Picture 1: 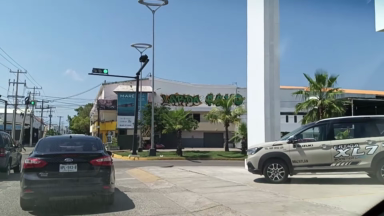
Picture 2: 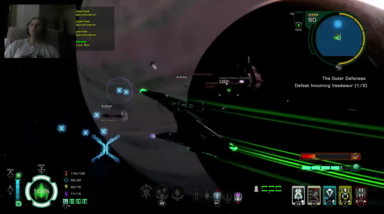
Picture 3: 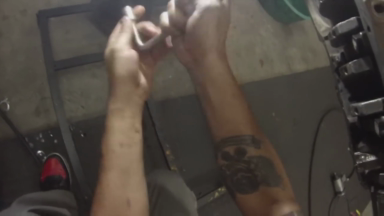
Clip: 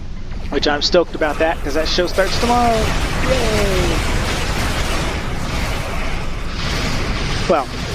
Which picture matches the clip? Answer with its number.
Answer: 2